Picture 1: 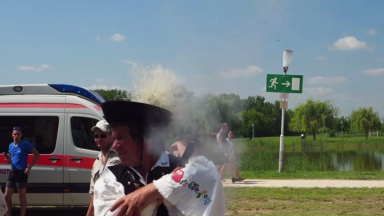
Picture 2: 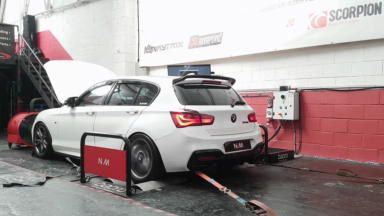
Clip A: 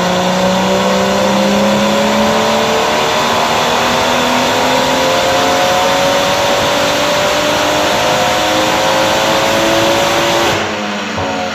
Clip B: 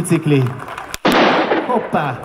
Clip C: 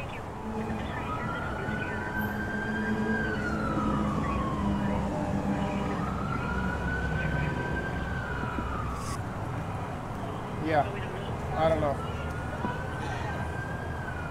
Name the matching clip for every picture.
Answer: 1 B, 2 A